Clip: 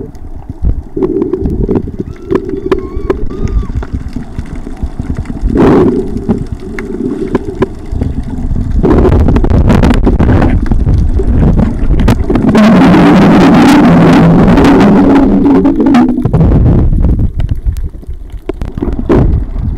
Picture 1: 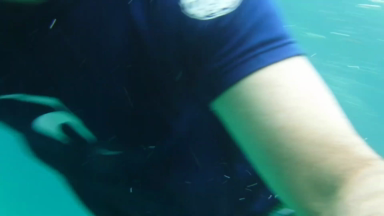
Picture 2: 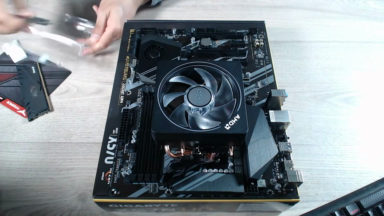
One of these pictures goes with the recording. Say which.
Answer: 1